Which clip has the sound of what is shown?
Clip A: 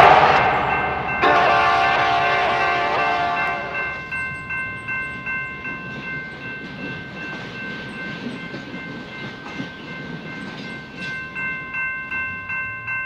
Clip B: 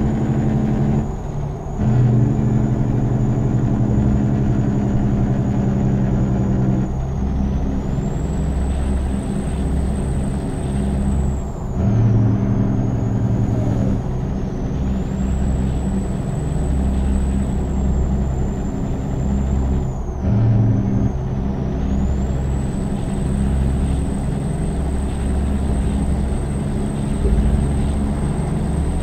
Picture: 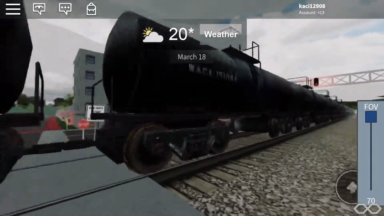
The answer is A